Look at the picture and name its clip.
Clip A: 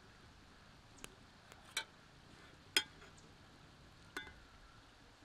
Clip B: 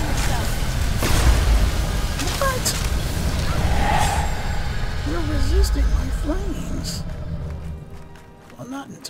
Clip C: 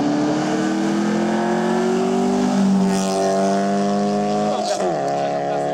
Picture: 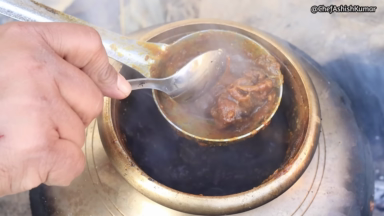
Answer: A